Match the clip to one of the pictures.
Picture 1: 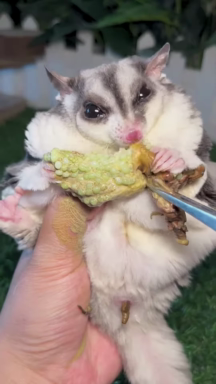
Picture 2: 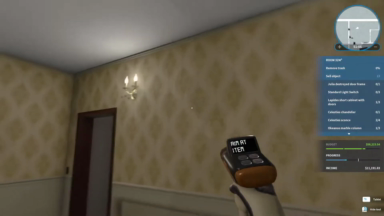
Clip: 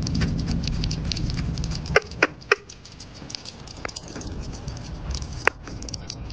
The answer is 1